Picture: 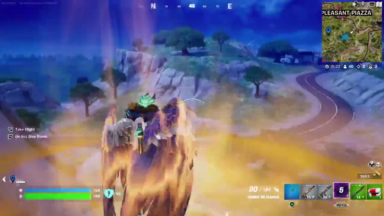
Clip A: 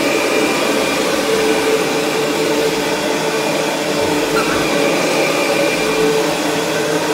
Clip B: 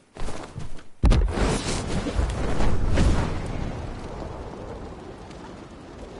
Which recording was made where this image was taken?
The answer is B